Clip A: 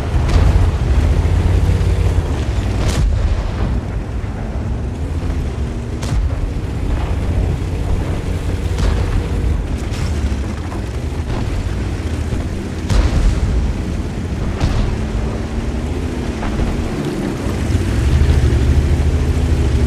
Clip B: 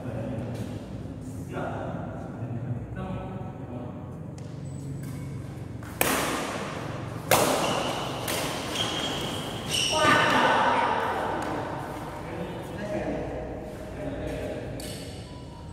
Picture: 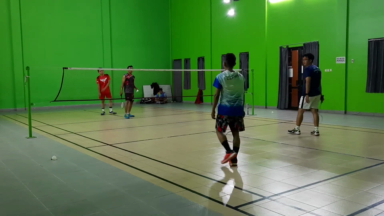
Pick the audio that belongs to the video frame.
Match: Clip B